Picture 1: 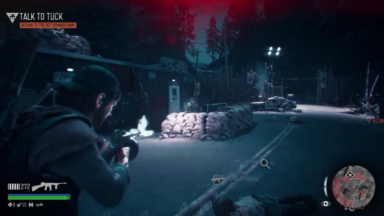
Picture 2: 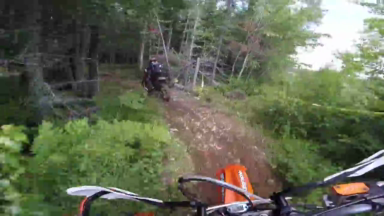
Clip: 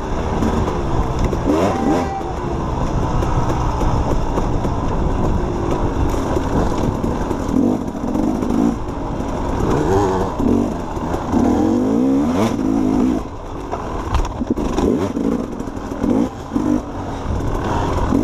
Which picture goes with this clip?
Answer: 2